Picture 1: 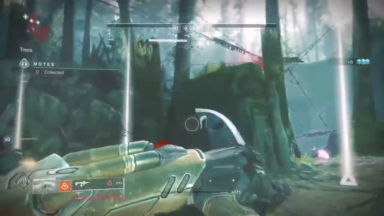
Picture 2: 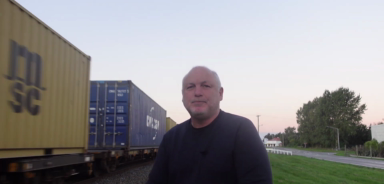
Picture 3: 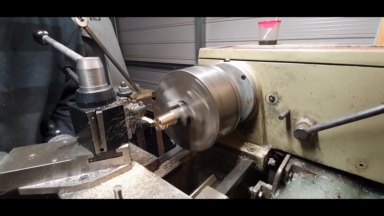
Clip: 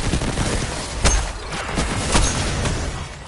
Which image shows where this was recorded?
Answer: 1